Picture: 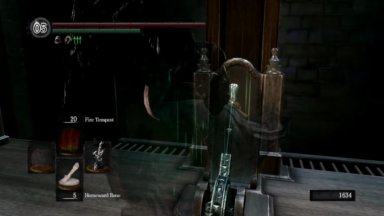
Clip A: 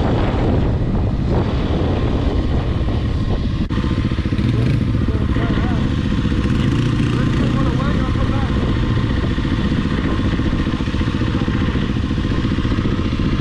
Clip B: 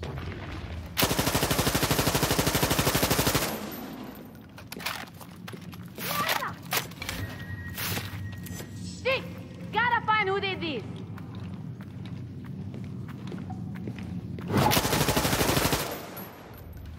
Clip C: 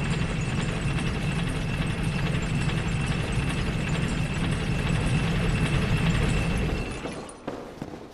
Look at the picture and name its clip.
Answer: C